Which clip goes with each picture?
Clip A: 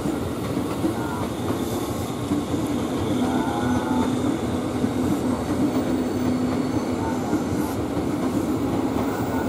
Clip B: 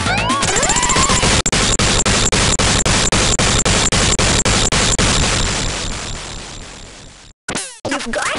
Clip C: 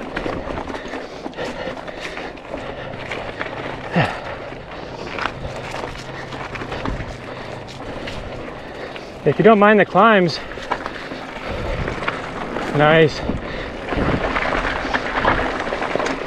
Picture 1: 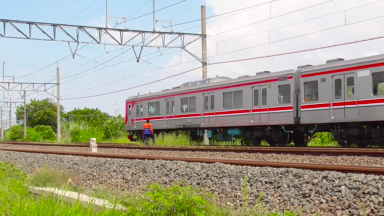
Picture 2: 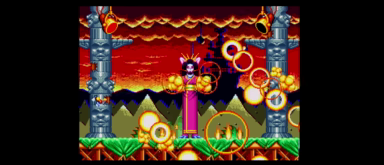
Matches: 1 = A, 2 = B